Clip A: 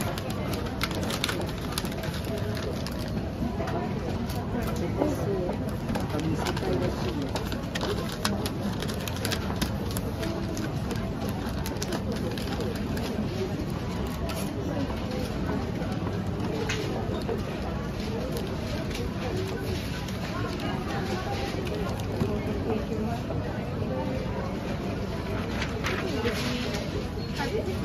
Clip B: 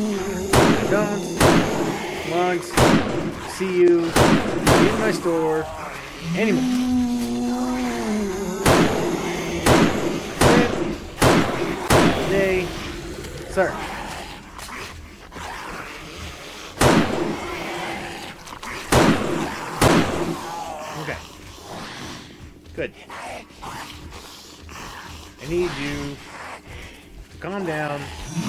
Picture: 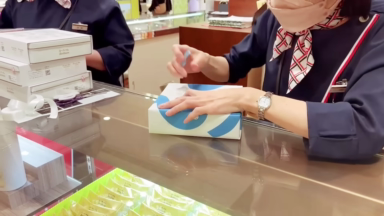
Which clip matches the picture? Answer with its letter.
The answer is A